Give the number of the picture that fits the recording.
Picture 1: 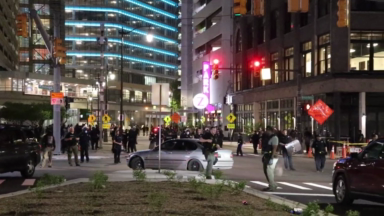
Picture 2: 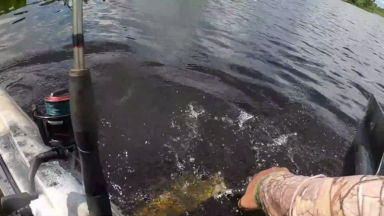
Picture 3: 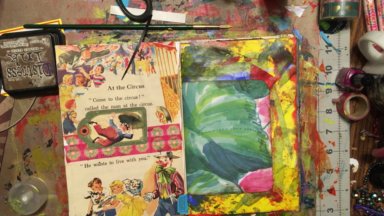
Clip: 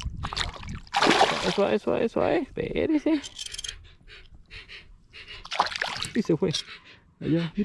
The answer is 2